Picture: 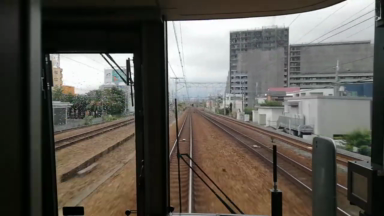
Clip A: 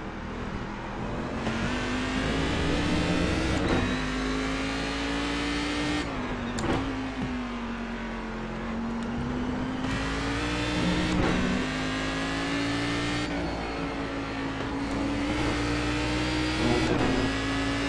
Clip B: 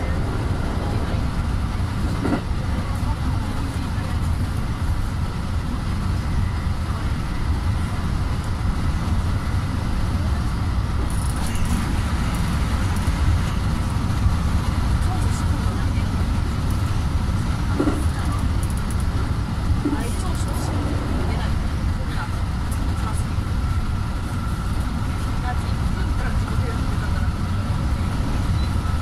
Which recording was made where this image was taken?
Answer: B